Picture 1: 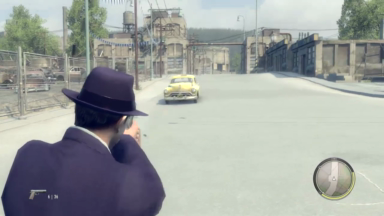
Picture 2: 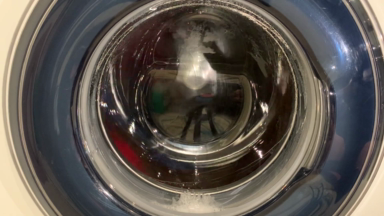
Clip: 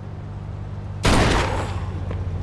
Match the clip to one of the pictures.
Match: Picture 1